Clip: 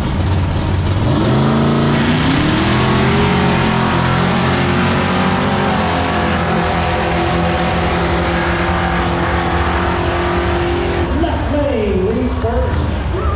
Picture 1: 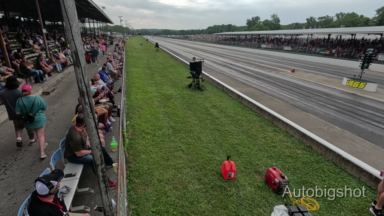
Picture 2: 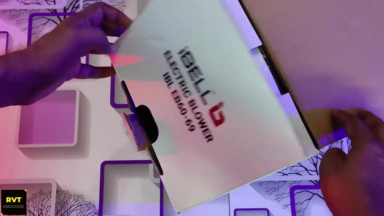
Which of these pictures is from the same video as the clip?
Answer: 1